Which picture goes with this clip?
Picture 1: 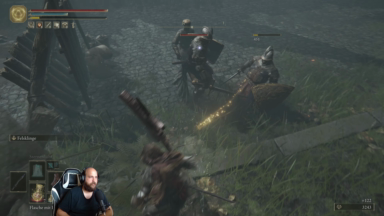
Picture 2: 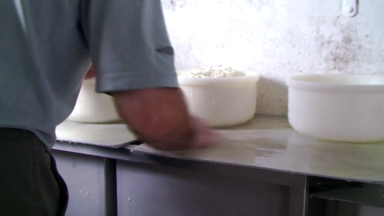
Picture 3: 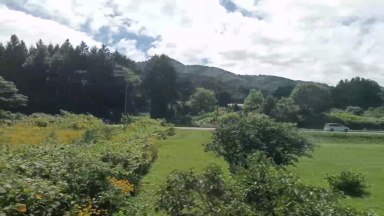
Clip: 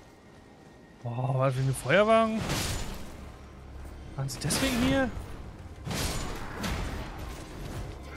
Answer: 1